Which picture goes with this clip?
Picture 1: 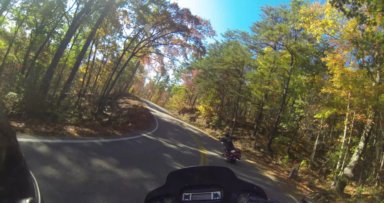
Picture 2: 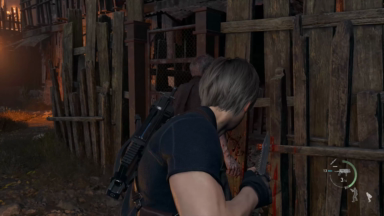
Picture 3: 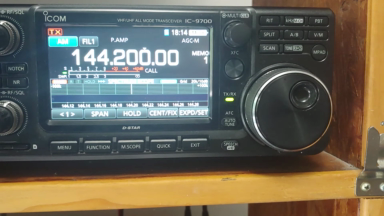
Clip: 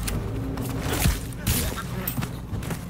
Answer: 2